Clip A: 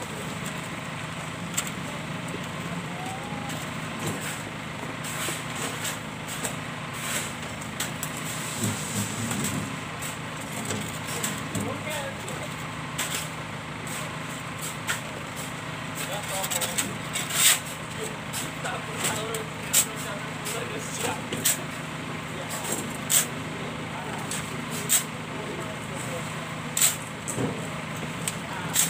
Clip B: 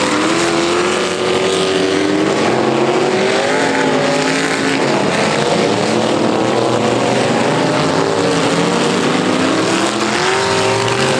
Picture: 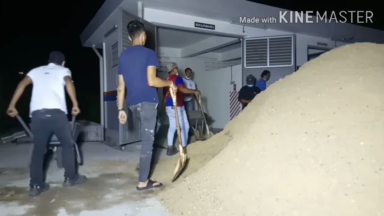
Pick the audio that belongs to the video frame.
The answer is A